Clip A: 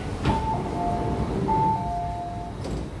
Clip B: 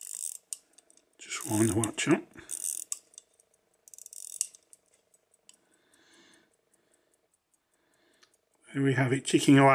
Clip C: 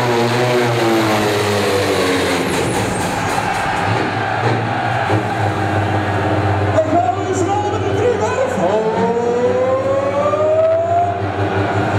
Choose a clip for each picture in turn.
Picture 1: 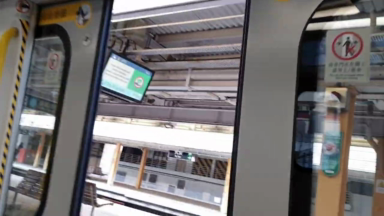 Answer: A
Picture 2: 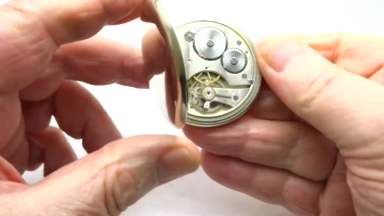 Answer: B